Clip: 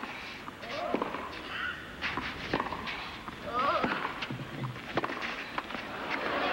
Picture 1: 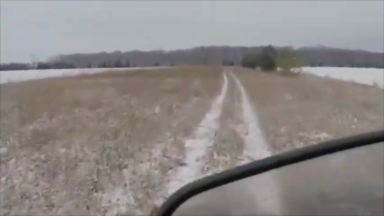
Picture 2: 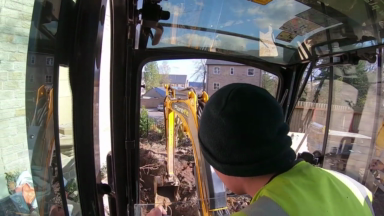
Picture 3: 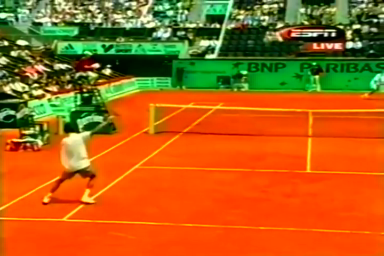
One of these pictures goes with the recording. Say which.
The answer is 3